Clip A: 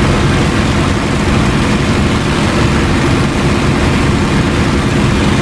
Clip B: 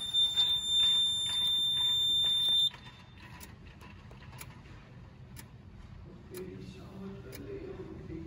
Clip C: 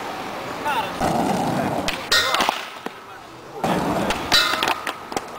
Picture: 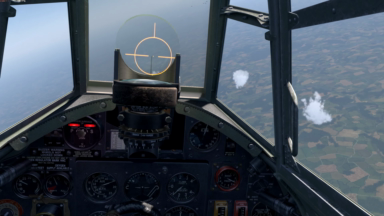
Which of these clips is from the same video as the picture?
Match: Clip A